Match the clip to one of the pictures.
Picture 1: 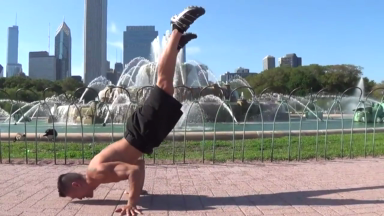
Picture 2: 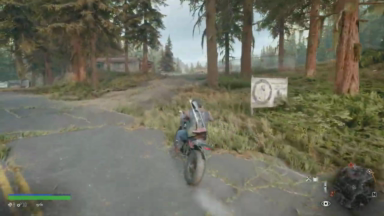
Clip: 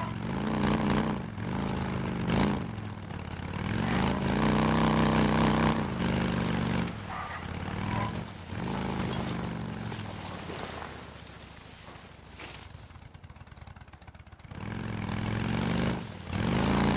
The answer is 2